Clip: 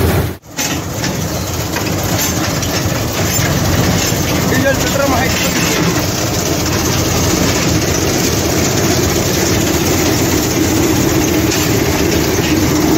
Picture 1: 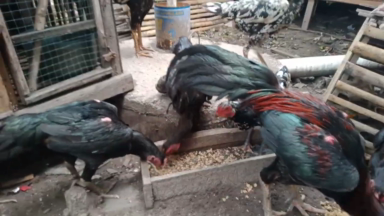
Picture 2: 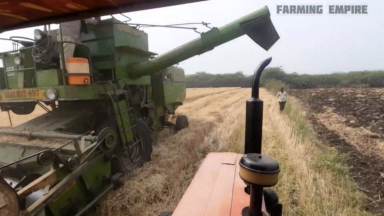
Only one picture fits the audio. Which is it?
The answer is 2